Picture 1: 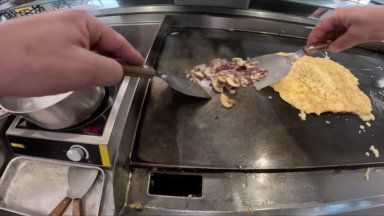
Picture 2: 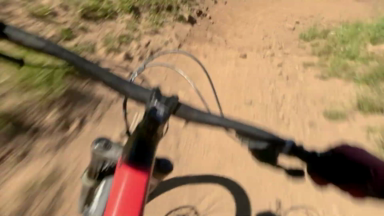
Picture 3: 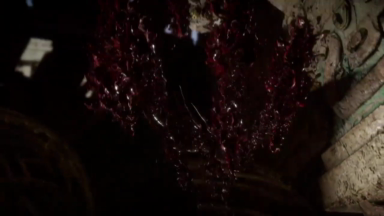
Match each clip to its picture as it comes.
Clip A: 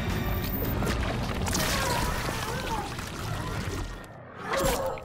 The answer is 3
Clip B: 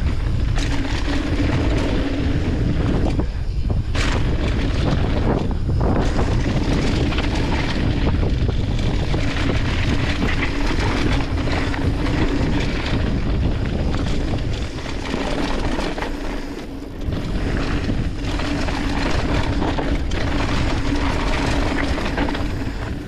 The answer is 2